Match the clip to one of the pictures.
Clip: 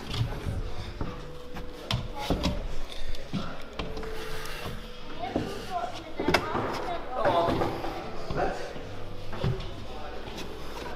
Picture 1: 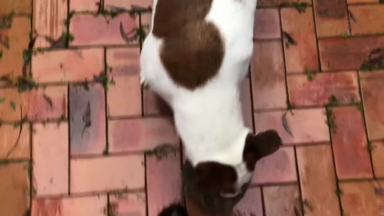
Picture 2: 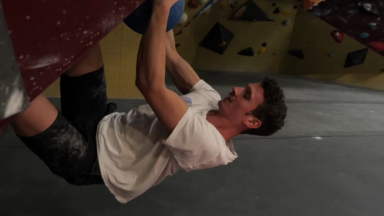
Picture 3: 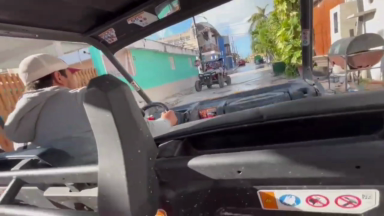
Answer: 2